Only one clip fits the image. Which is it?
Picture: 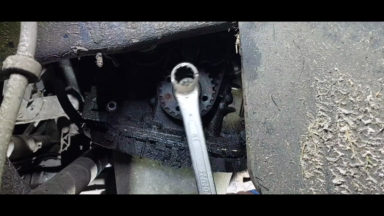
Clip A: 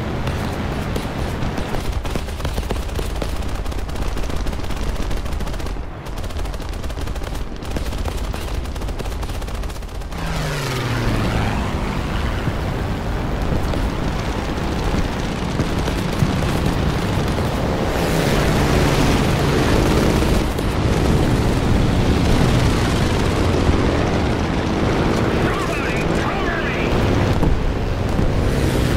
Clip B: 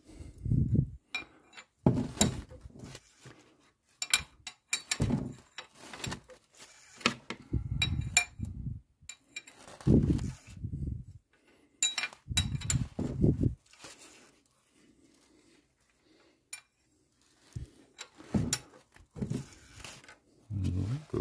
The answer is B